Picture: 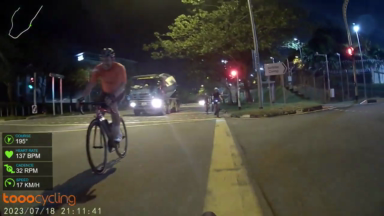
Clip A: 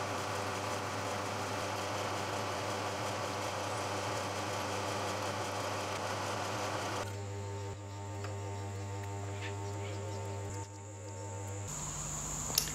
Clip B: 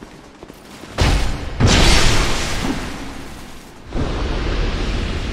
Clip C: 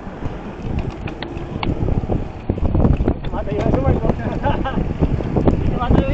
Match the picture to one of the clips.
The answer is C